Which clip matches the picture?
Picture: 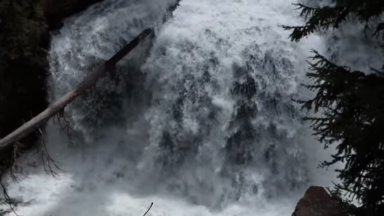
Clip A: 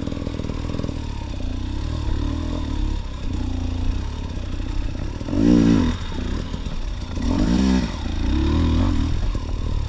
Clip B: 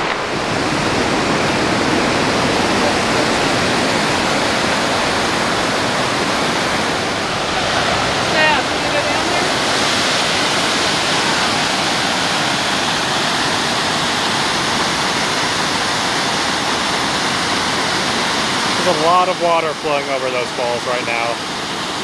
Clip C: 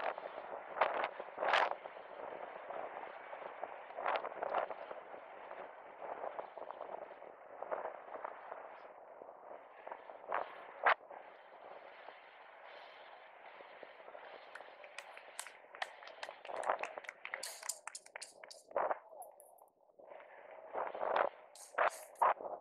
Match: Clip B